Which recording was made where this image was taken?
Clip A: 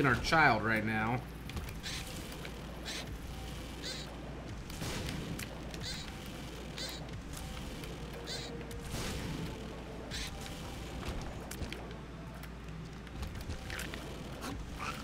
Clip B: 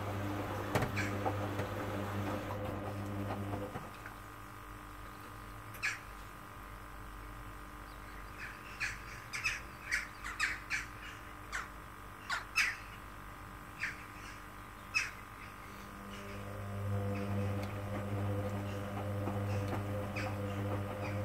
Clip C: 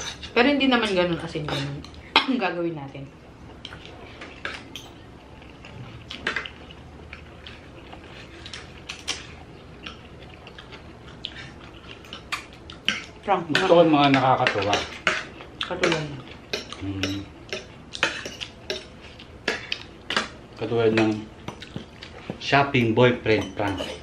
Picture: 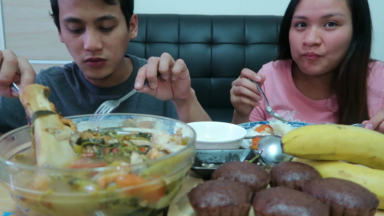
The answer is C